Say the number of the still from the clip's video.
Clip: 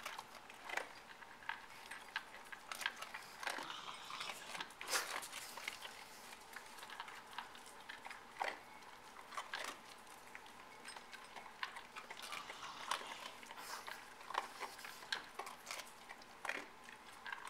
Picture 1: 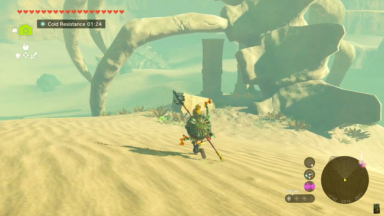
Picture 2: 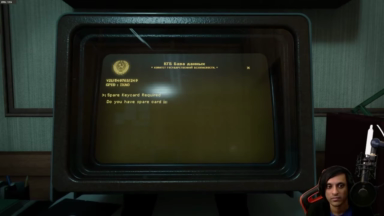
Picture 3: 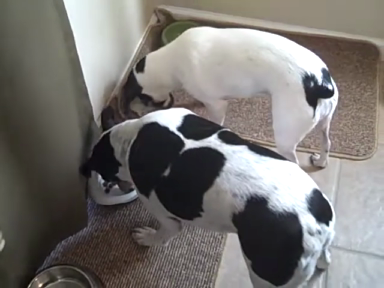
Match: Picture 3